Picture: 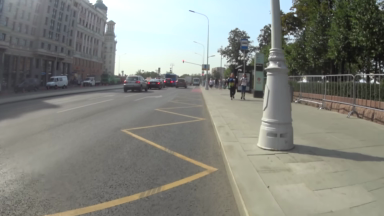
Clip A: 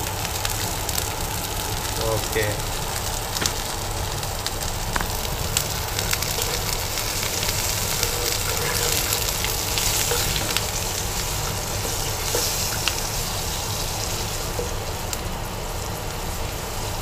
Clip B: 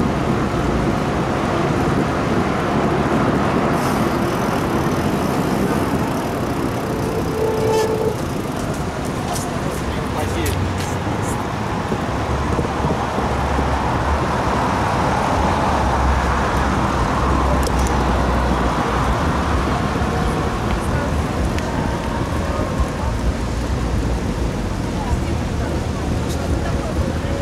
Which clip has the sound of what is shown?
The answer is B